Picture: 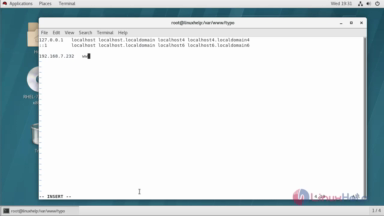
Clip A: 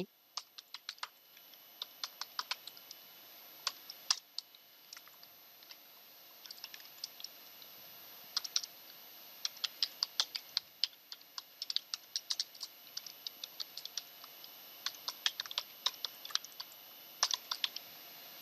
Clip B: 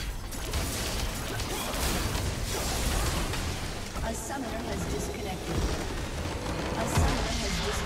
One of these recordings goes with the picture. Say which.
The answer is A